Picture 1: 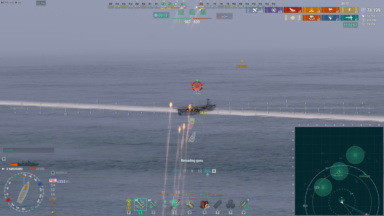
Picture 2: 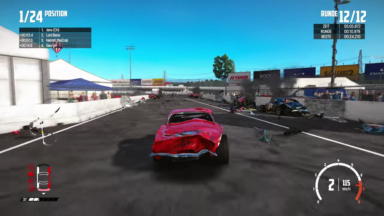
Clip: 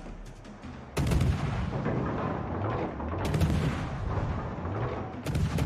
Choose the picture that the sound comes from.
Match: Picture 1